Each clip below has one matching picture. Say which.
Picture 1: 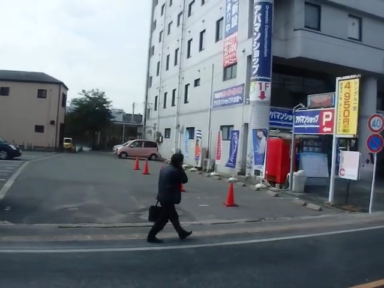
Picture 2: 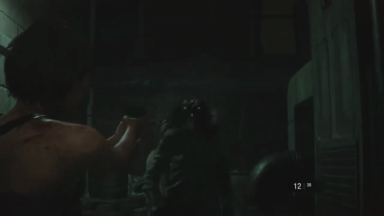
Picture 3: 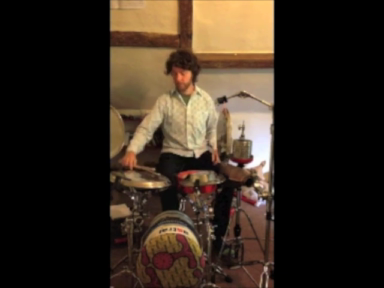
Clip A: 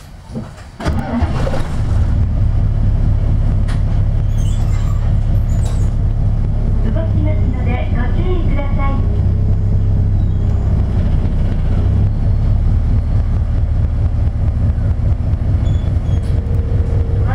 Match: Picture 1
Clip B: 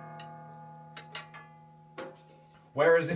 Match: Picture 3